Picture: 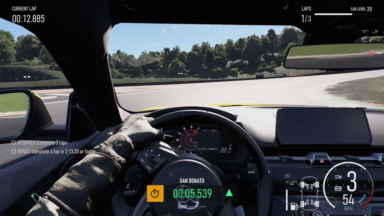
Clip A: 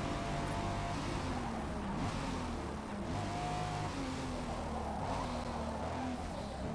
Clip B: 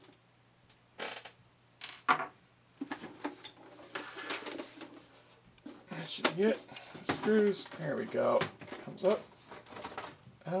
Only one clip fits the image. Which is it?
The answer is A